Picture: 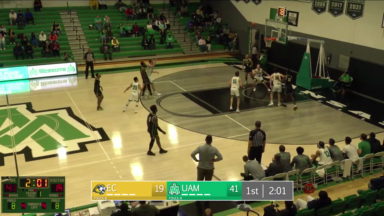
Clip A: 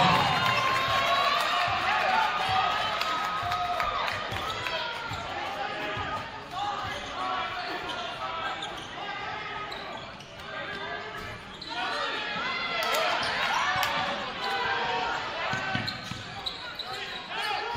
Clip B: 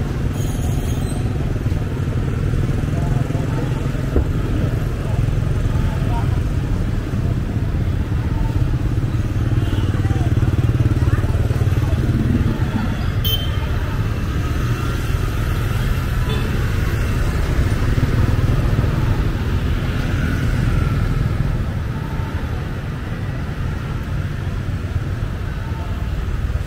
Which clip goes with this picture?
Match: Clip A